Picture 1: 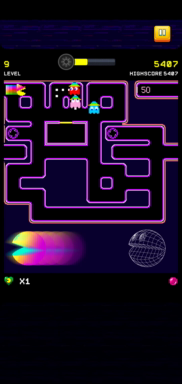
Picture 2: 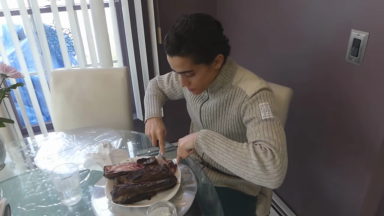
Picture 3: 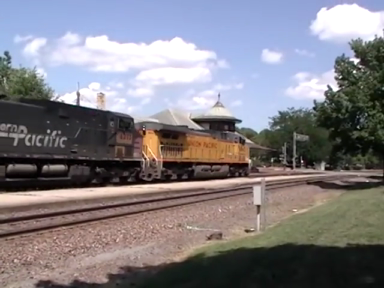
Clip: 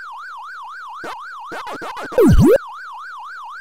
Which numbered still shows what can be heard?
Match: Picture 1